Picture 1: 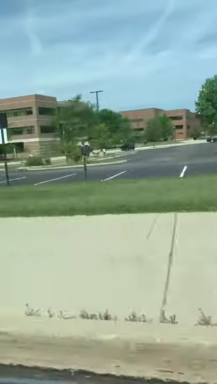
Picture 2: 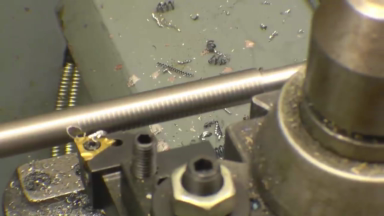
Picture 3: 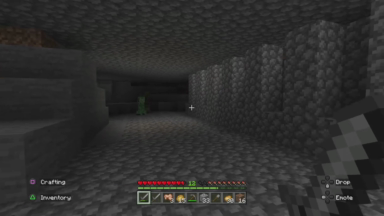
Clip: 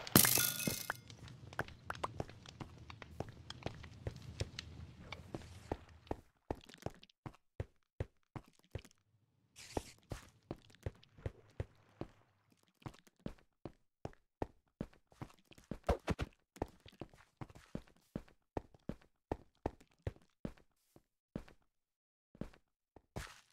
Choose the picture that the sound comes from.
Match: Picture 3